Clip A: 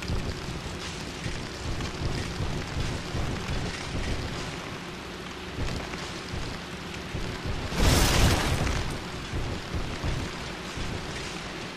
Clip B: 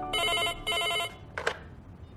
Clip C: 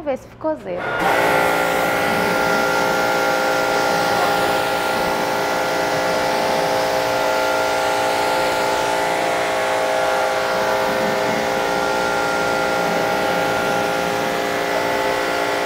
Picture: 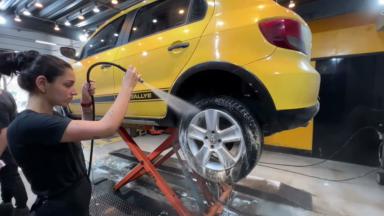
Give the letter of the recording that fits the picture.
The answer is C